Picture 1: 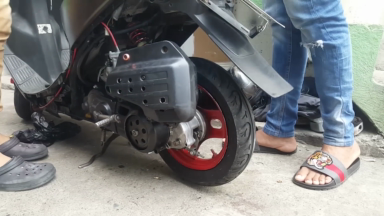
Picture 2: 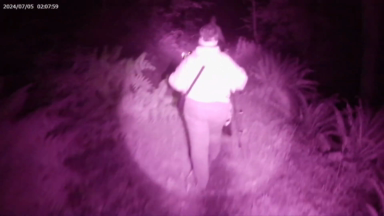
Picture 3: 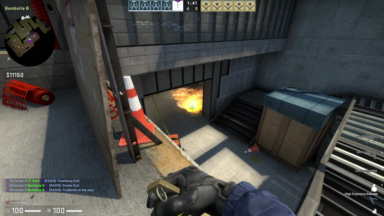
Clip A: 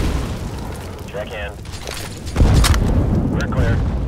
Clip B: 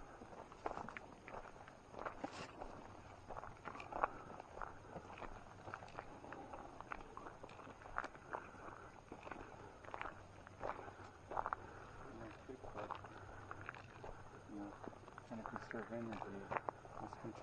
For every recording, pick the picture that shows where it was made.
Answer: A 3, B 2